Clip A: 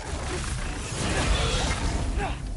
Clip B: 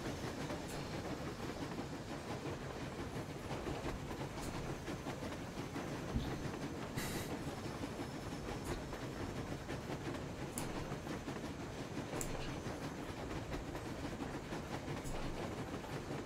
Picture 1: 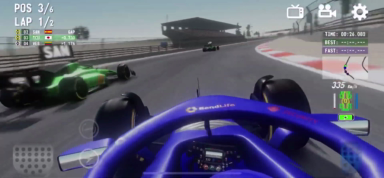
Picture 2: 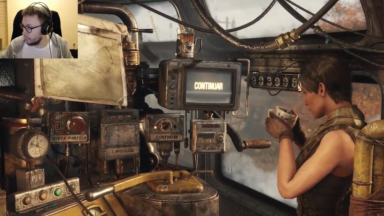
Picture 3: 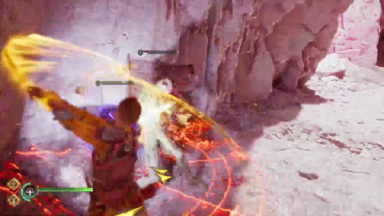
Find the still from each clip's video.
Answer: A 3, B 2